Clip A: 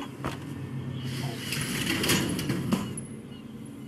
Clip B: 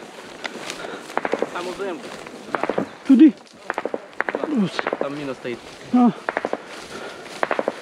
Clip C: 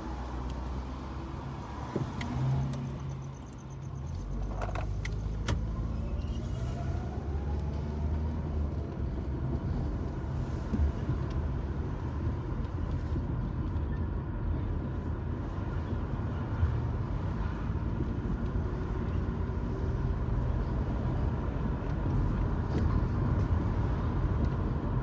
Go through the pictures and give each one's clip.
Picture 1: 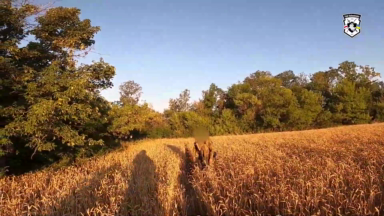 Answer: B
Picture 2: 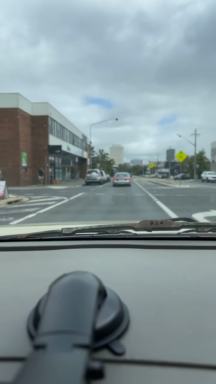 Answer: C